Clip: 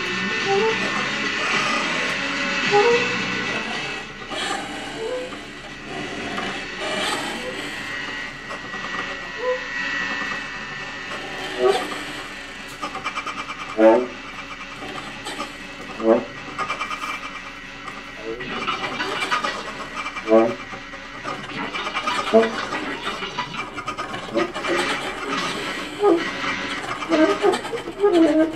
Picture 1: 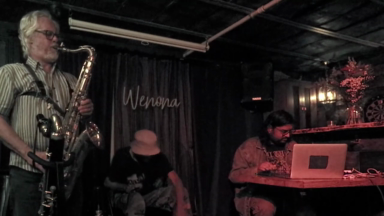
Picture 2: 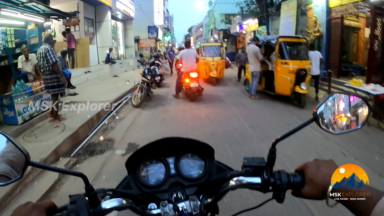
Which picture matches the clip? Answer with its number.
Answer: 1